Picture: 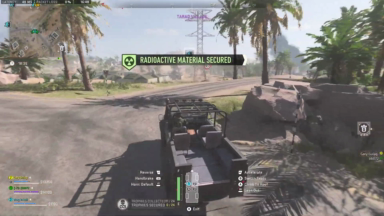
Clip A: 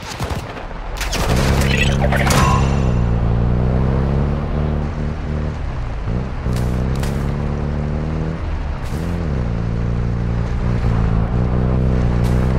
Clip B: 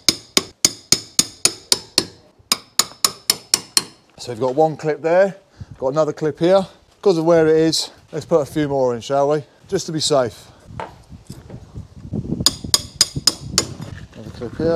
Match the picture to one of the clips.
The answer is A